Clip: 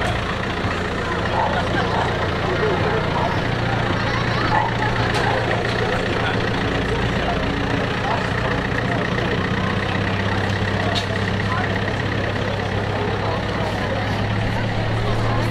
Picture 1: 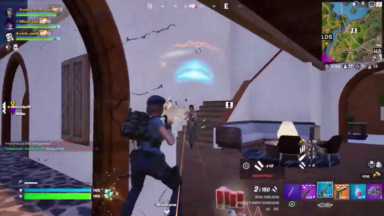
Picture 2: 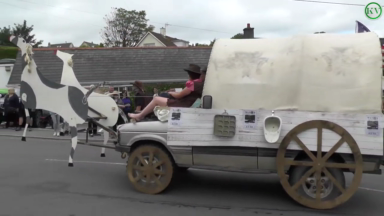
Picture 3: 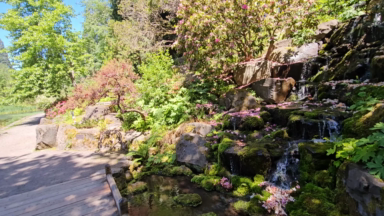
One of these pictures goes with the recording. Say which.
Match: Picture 2